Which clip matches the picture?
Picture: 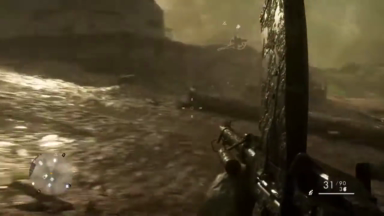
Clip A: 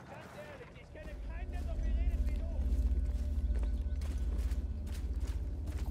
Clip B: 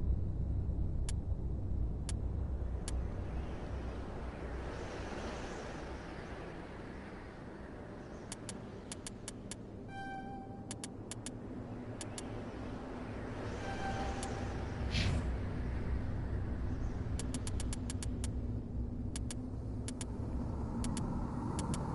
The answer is A